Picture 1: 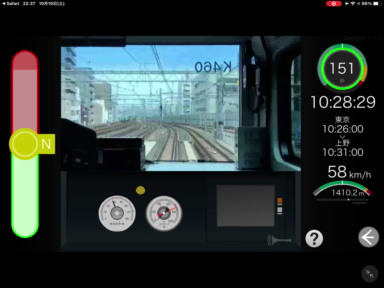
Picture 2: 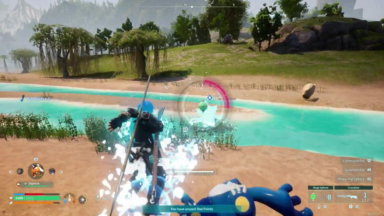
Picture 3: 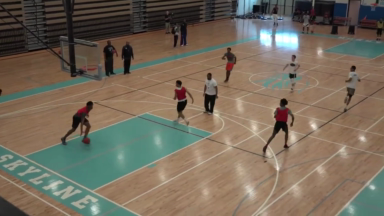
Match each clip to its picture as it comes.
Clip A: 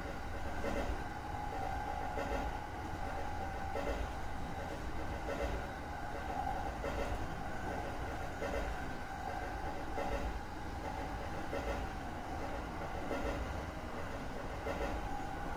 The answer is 1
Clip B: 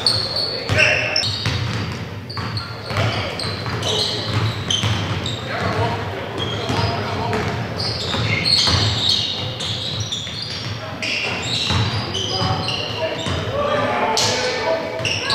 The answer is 3